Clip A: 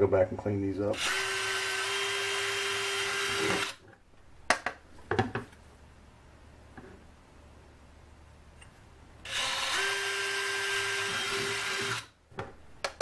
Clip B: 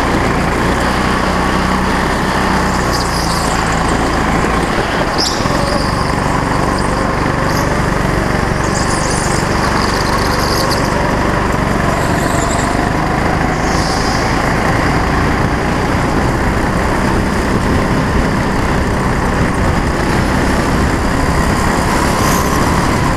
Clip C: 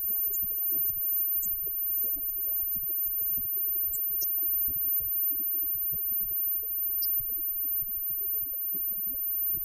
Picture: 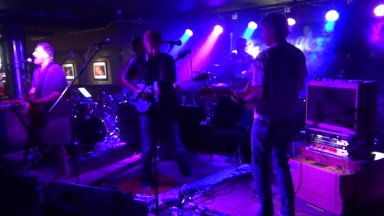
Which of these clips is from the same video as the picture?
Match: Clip C